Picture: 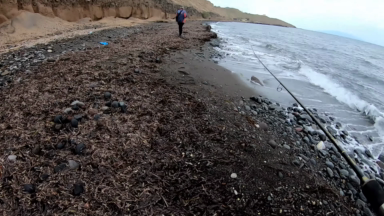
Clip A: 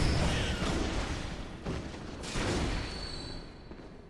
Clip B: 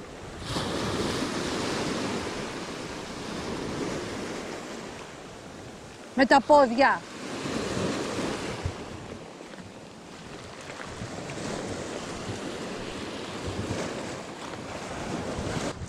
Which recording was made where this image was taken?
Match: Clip B